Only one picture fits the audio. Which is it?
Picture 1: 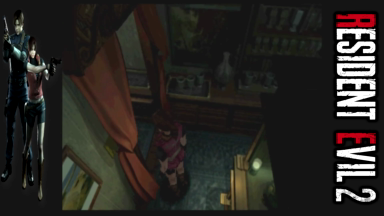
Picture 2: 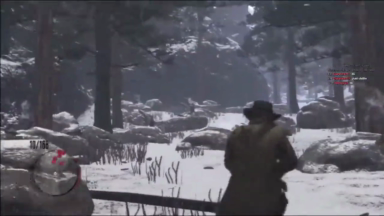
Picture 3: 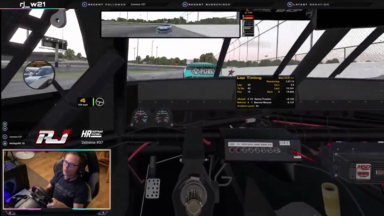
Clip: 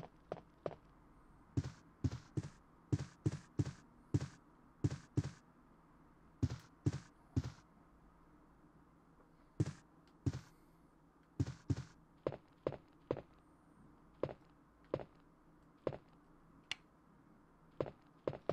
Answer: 1